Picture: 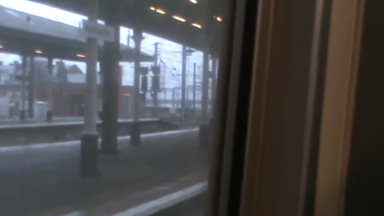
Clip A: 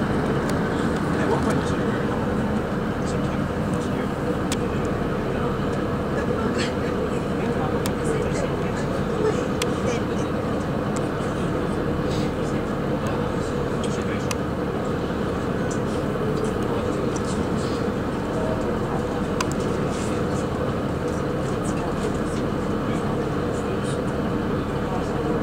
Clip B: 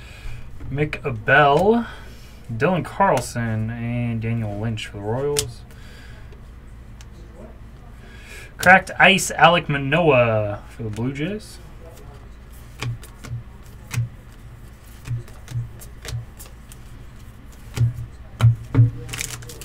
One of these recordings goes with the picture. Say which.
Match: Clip A